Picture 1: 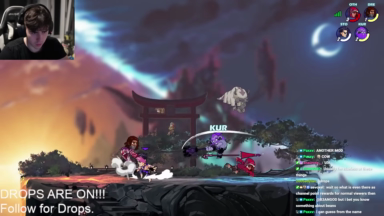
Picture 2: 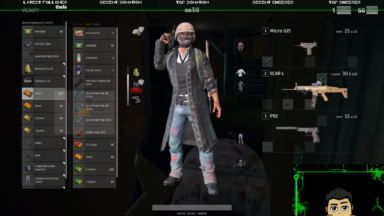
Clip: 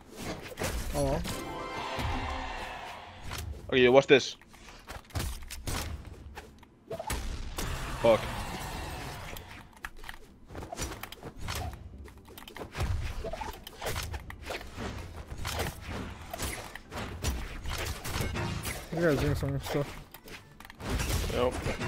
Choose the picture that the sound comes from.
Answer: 1